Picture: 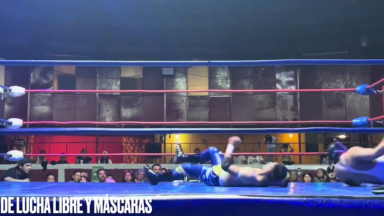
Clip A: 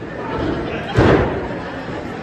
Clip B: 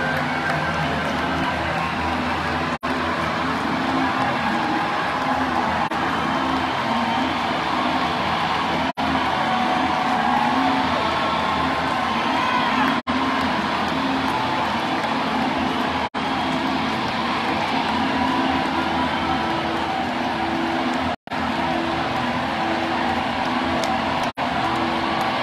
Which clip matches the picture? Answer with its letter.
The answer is A